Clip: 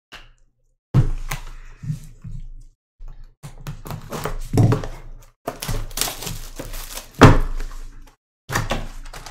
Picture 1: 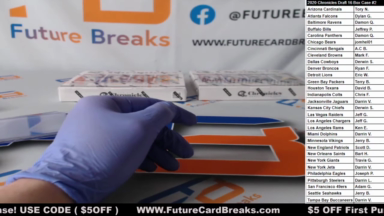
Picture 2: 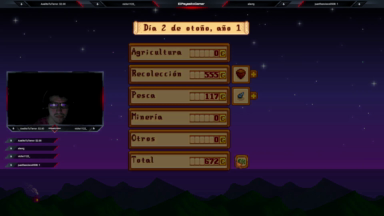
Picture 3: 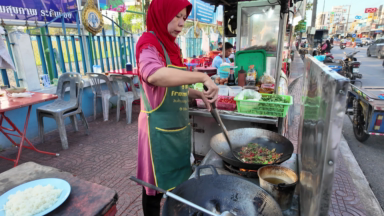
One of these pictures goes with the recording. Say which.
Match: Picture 1